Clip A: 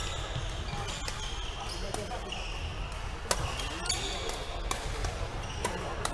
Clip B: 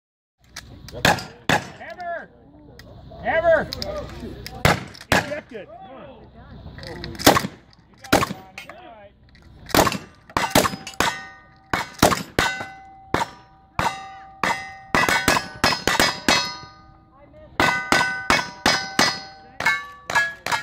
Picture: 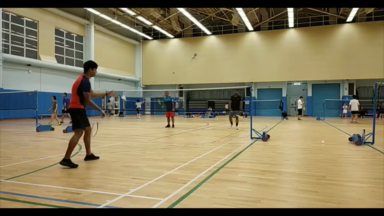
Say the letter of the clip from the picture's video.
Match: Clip A